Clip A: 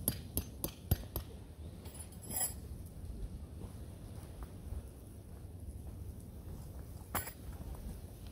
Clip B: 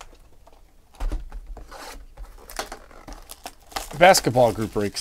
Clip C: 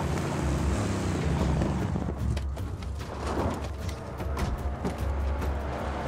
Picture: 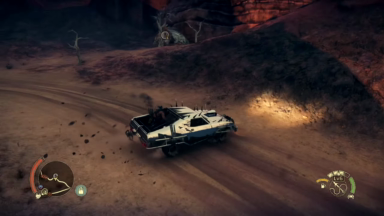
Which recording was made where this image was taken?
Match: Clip C